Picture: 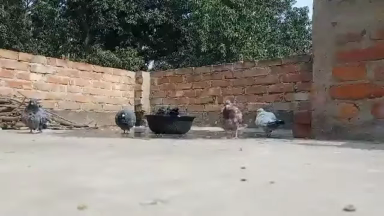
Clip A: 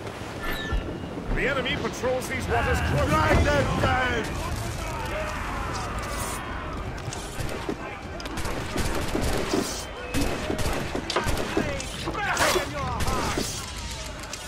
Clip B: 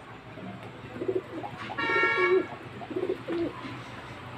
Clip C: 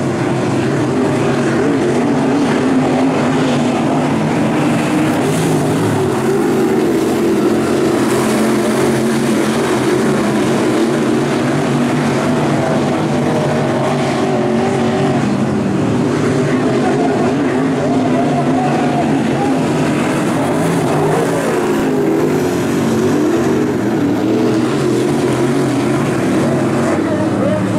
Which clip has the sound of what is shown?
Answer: B